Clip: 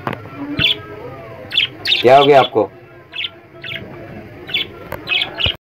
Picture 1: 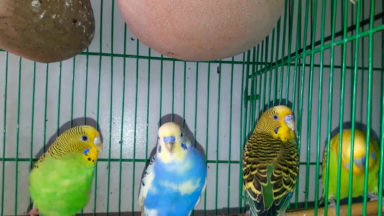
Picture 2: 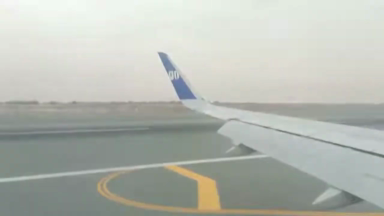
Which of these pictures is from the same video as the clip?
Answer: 1